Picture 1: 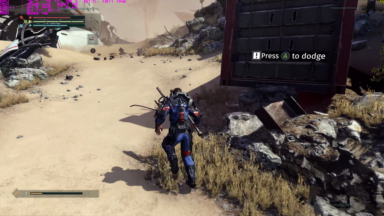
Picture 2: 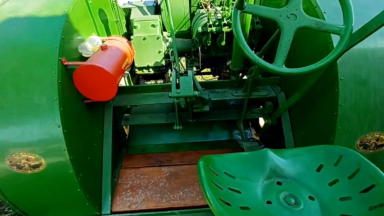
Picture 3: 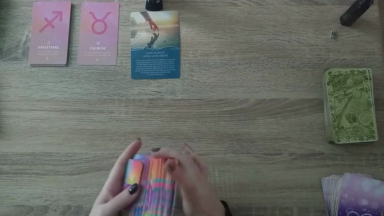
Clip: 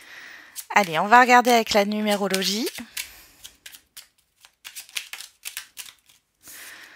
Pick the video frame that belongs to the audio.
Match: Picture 3